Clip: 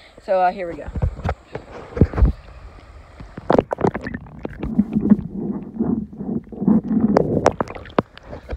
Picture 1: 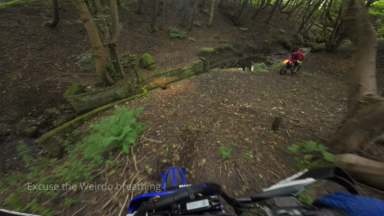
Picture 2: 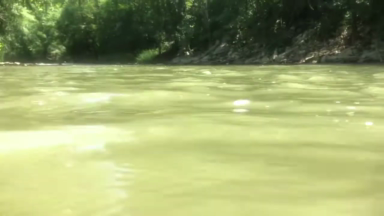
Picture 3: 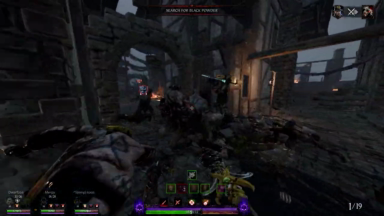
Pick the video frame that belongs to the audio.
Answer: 2